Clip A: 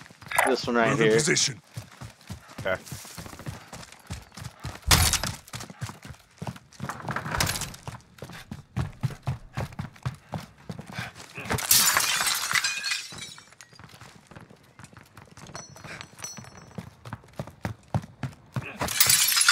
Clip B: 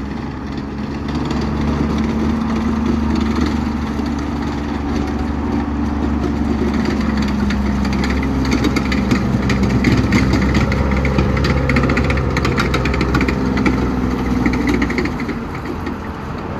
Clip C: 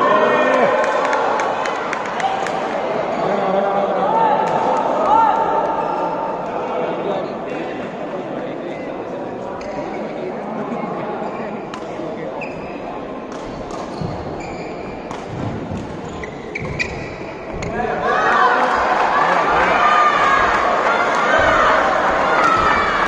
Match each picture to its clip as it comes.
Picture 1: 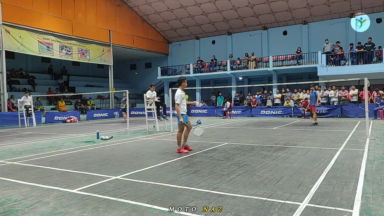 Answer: C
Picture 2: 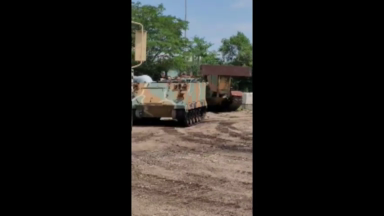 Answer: B